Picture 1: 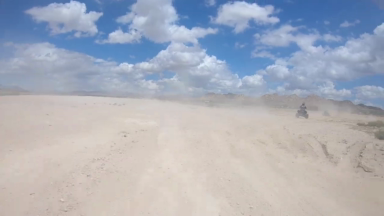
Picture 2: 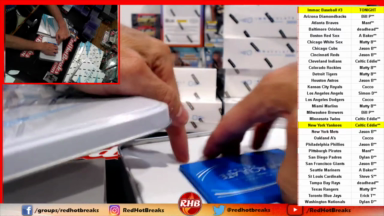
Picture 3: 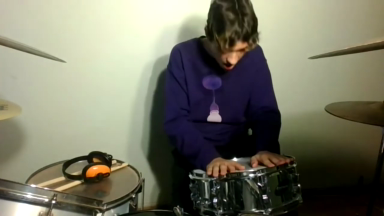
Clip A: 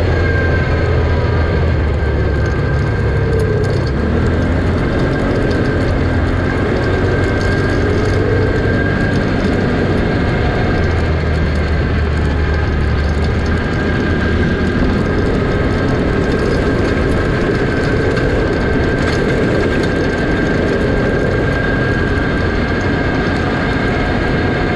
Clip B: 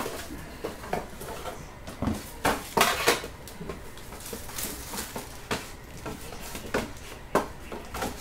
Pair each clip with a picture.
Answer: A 1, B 2